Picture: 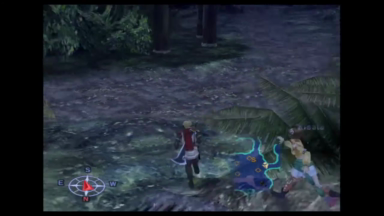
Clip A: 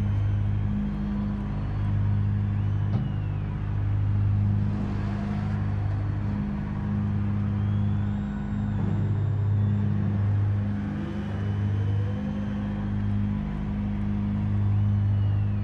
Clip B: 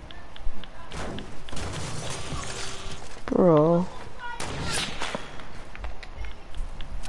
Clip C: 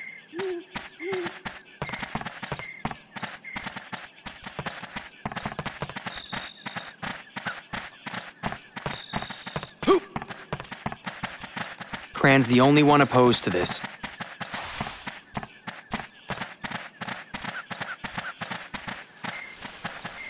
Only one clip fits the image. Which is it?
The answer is C